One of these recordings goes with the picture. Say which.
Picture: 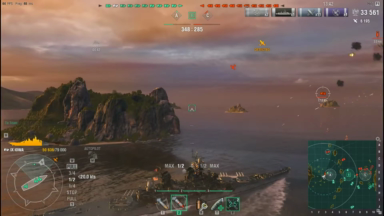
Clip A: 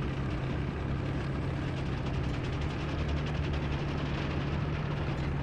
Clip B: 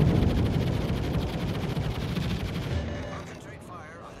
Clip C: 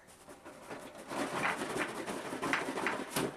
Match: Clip B